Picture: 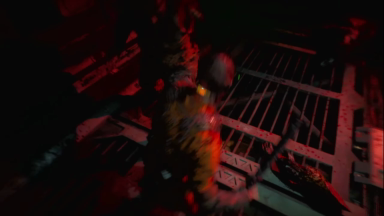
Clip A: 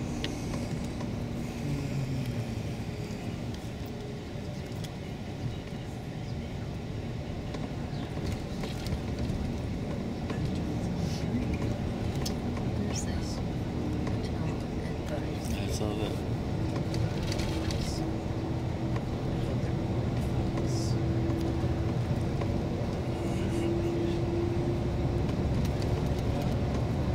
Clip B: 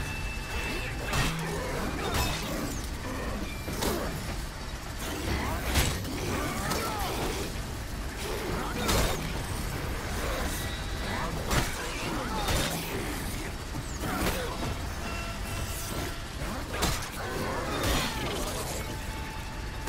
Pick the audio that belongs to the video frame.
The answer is B